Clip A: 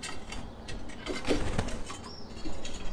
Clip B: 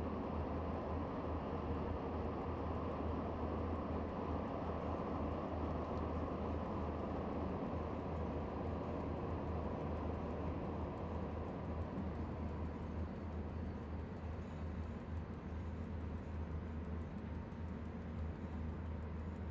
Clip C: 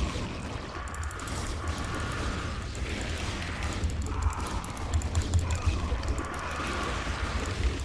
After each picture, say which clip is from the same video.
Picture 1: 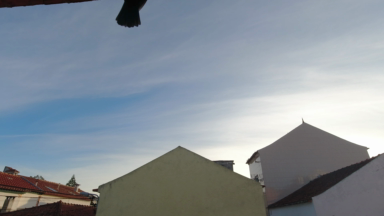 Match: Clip A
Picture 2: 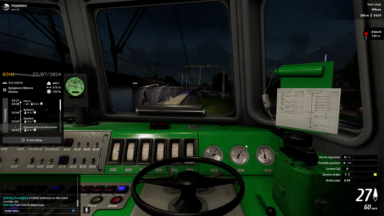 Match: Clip B